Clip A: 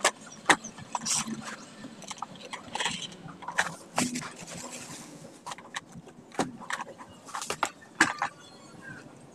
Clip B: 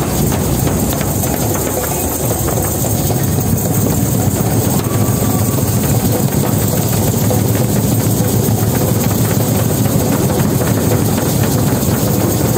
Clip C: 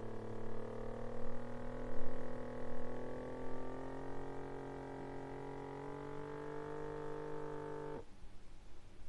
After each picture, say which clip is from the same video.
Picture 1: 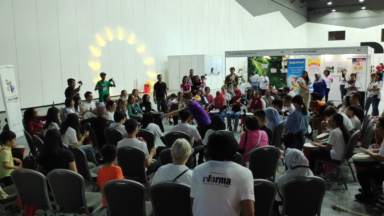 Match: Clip B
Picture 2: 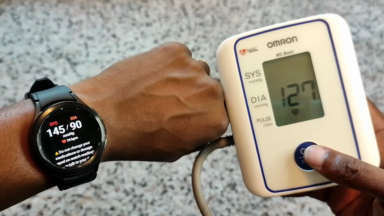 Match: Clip C